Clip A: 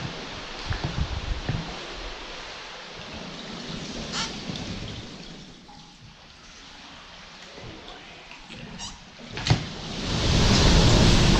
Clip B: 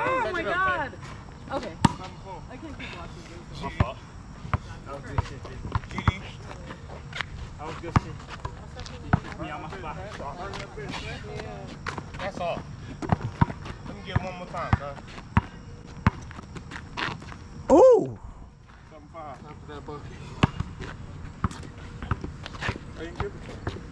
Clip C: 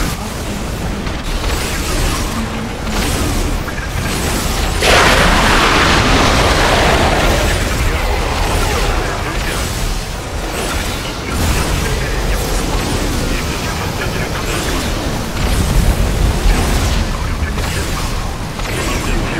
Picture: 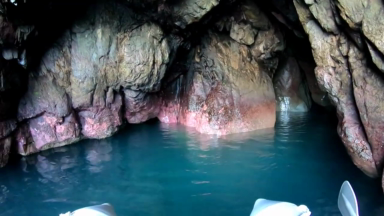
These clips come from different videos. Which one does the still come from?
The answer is A